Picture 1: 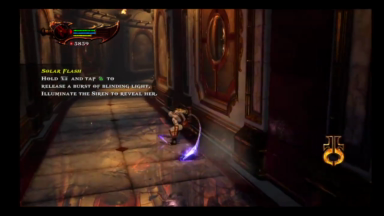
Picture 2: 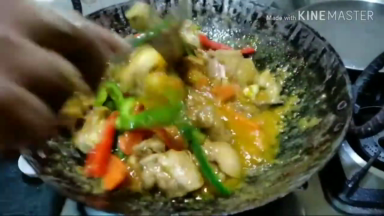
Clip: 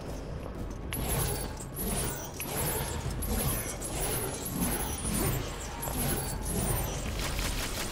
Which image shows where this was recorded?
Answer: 1